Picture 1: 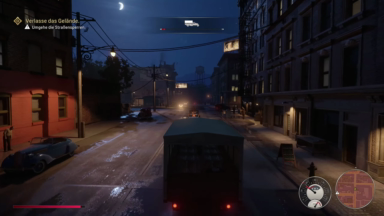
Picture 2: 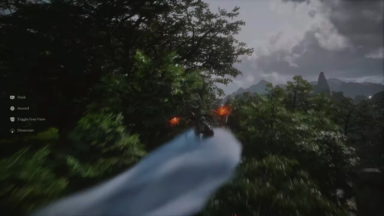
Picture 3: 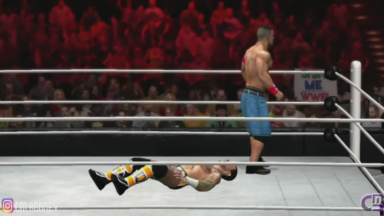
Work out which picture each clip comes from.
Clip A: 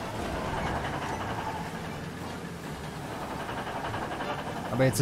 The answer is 1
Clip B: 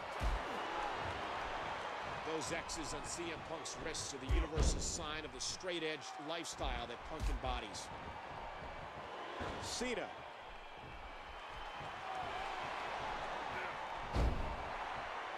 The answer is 3